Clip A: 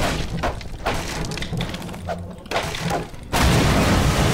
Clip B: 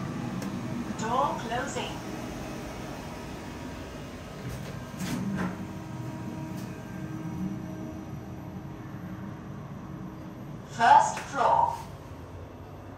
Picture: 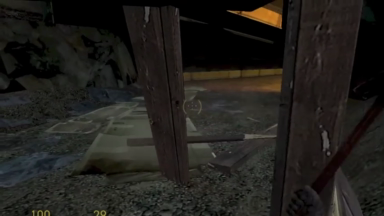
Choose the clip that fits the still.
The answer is A